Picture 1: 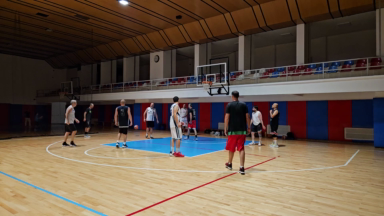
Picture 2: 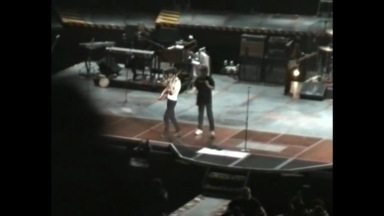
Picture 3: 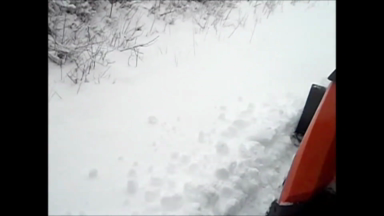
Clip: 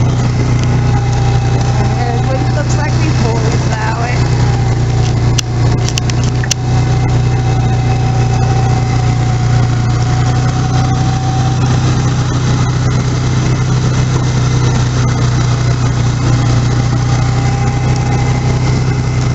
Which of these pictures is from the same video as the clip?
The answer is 3